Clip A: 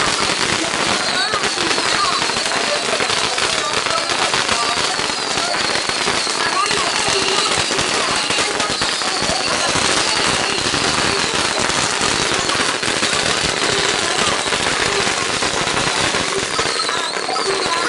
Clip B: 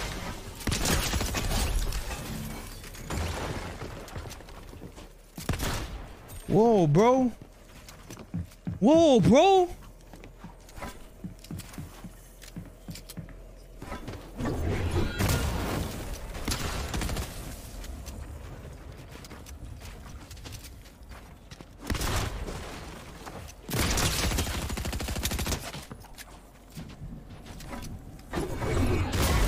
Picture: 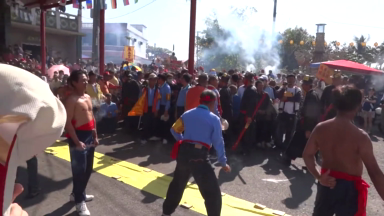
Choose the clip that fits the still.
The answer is A